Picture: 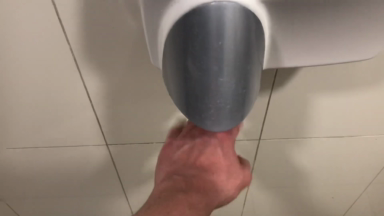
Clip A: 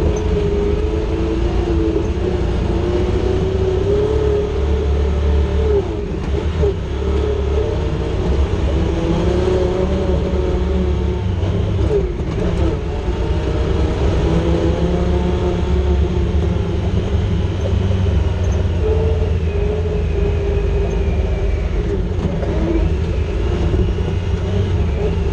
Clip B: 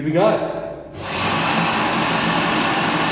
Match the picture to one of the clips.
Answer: B